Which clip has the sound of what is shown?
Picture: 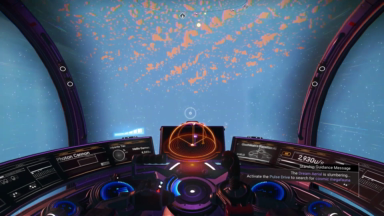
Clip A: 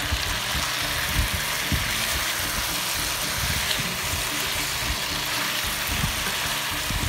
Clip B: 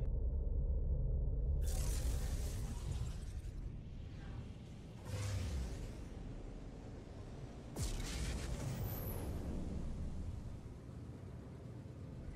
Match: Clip B